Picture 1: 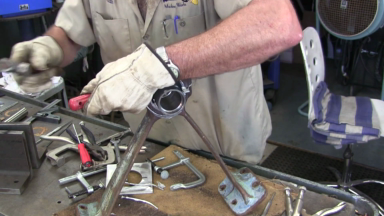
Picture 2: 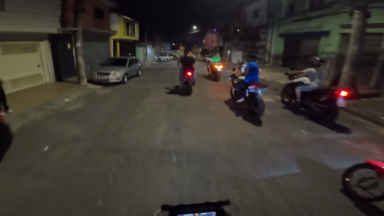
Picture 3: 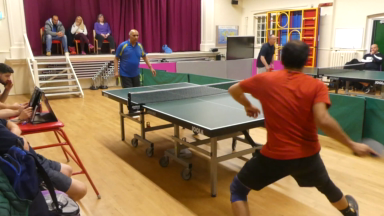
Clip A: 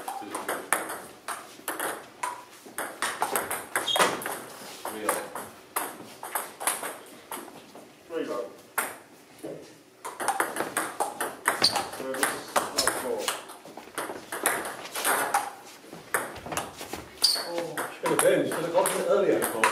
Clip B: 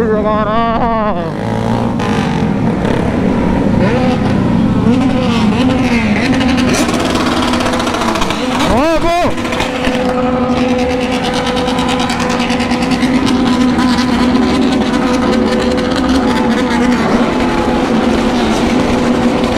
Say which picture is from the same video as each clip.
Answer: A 3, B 2